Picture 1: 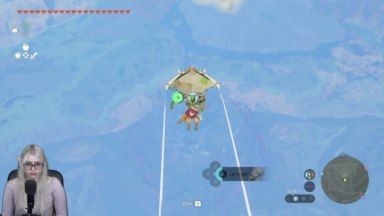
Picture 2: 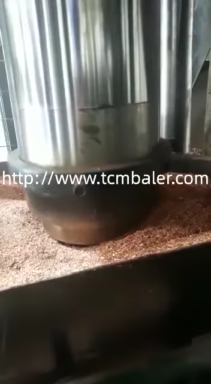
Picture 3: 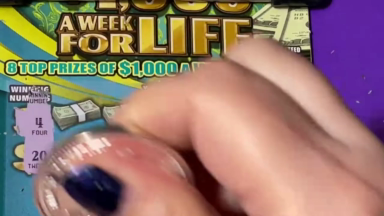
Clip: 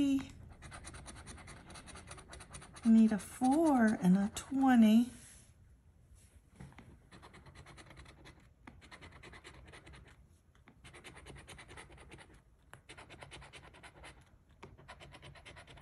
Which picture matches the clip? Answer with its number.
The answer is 3